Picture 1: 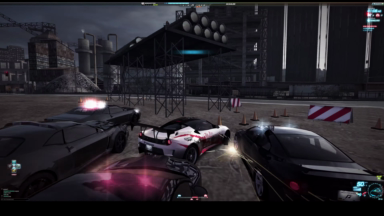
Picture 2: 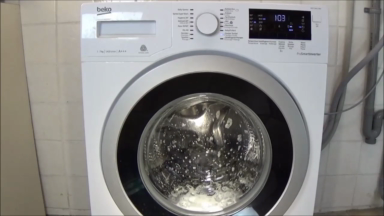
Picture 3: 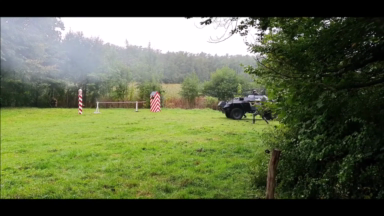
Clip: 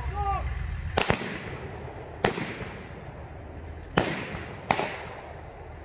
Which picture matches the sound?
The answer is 3